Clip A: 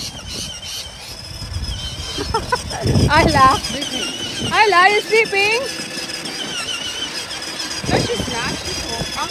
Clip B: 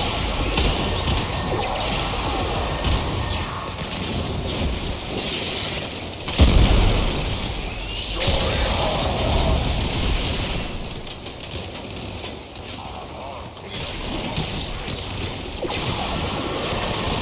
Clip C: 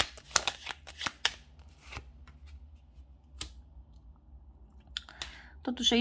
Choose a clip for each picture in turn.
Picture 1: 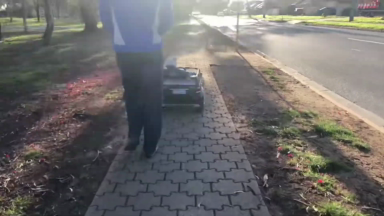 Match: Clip A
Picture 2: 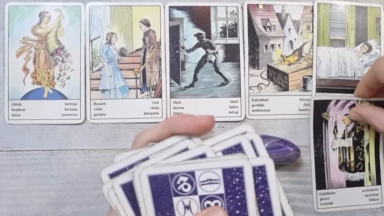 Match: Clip C